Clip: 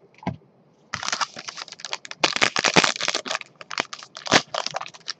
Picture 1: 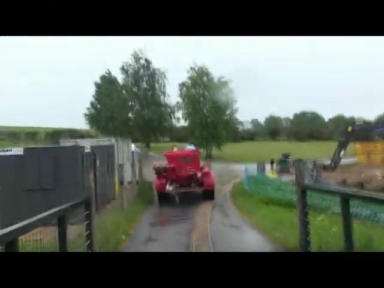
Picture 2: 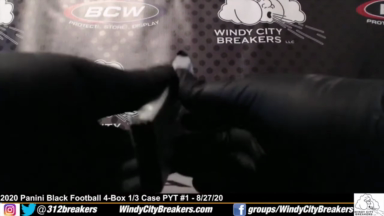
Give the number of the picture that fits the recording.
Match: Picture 2